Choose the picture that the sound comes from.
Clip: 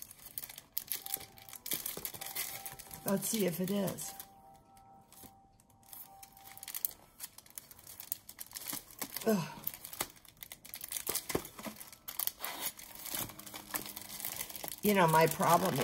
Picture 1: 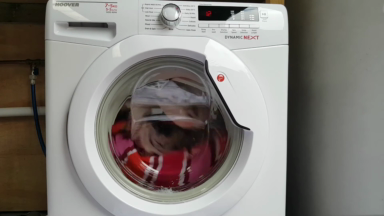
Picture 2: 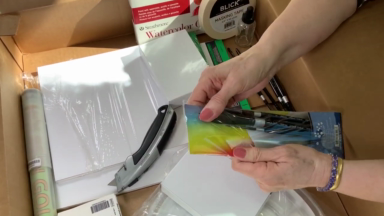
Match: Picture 2